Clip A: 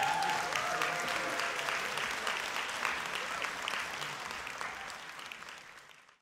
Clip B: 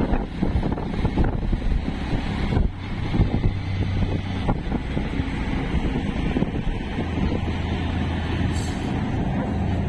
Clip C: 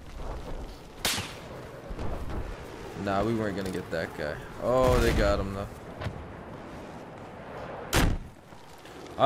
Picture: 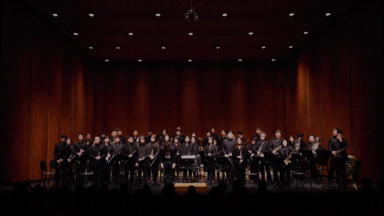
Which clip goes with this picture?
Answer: A